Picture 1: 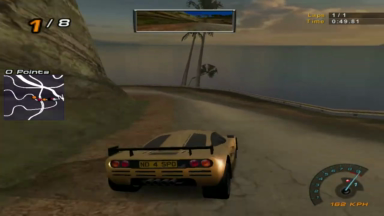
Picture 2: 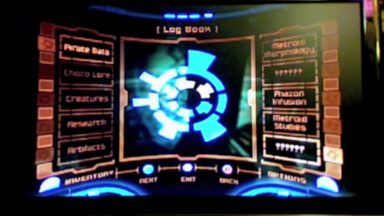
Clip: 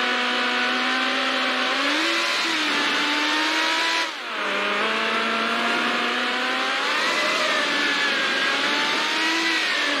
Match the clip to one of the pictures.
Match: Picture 1